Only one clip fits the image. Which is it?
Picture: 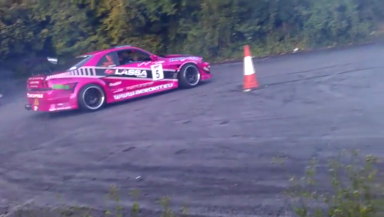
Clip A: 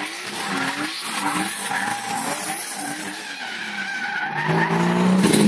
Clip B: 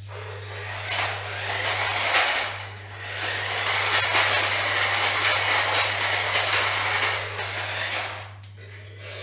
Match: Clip A